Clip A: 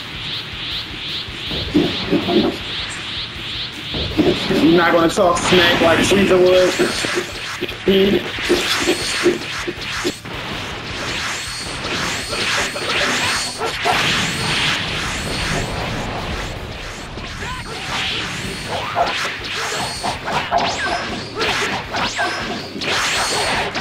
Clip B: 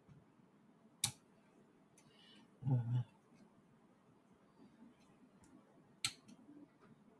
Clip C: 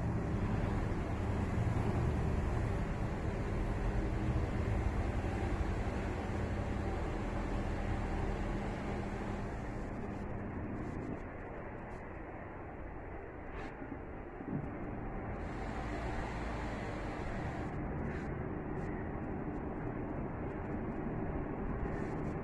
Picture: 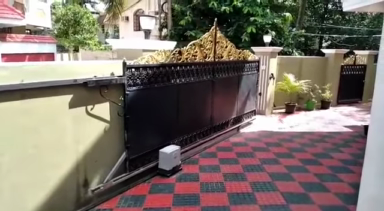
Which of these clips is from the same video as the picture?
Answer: C